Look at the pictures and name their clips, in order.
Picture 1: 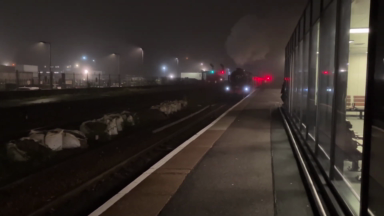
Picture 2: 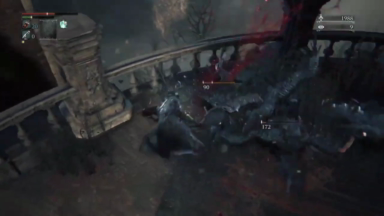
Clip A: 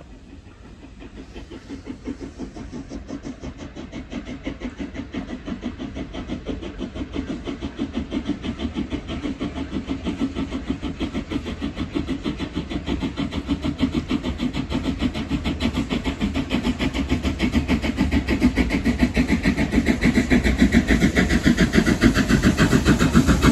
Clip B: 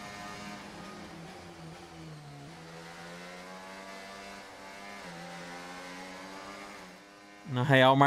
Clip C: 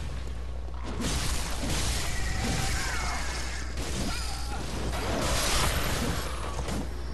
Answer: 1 A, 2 C